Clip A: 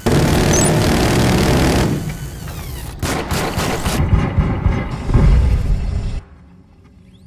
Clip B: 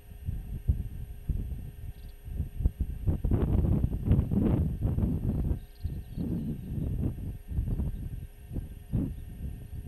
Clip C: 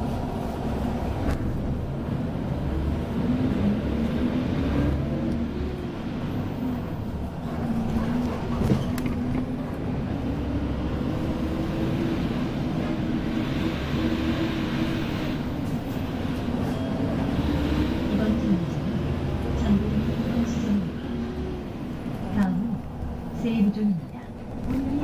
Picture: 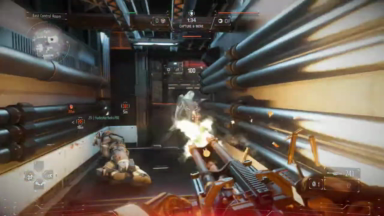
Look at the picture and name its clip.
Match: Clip A